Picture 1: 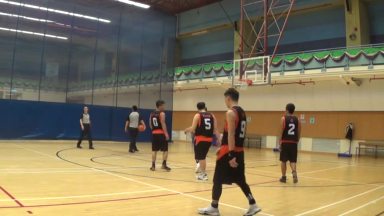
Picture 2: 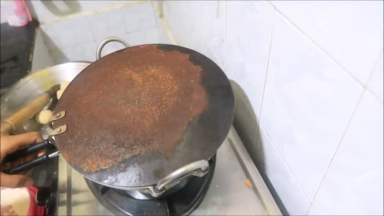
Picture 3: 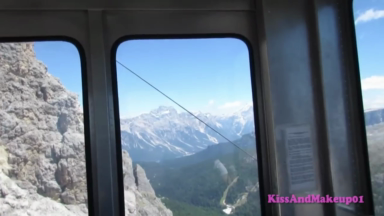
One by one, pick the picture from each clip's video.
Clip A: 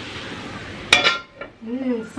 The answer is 2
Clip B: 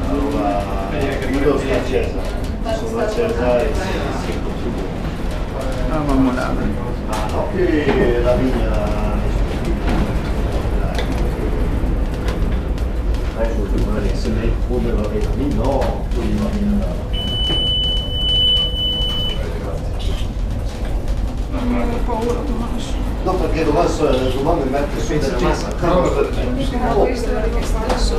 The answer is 3